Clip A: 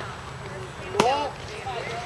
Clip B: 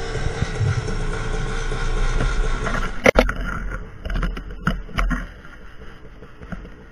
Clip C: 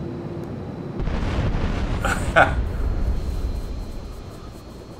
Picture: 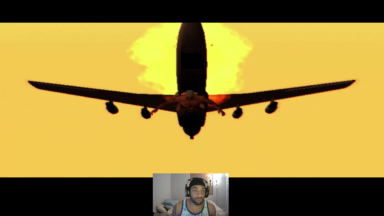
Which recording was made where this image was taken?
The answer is C